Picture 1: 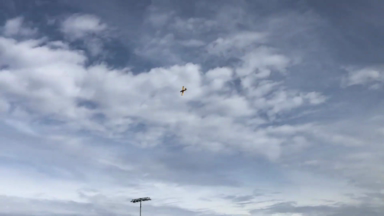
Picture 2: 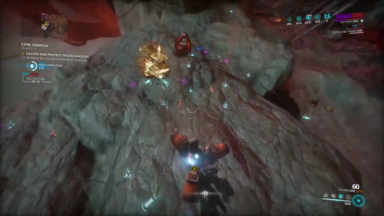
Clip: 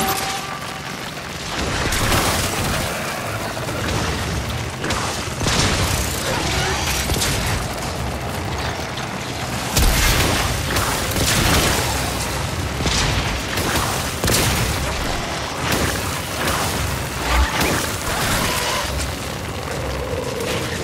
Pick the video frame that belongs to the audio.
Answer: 2